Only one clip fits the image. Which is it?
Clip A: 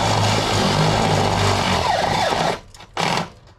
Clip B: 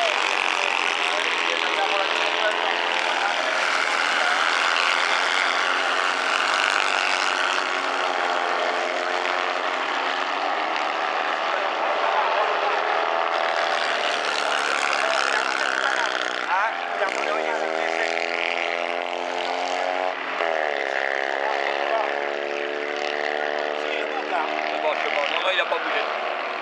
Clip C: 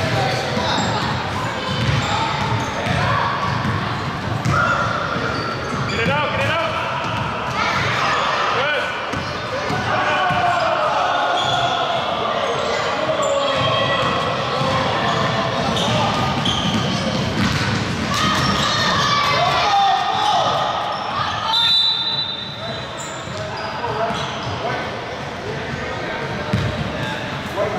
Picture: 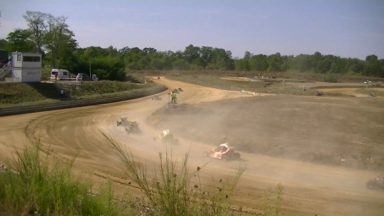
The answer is B